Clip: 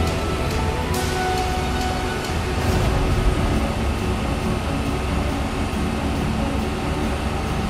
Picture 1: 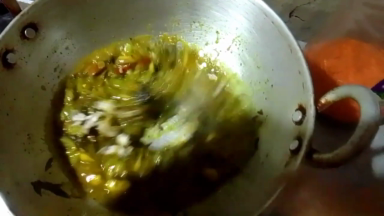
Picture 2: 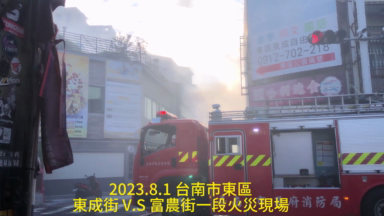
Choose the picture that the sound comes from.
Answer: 2